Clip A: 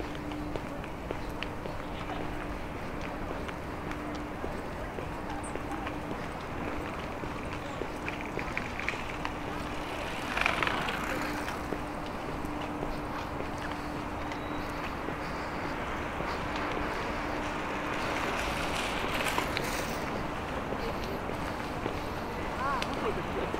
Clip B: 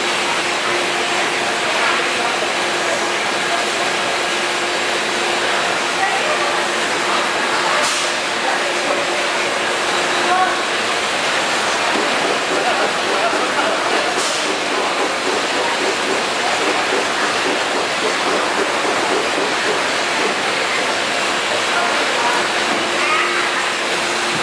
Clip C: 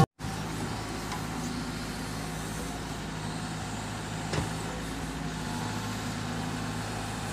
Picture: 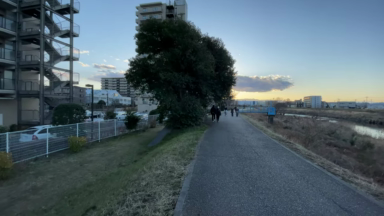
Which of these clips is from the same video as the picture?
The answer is A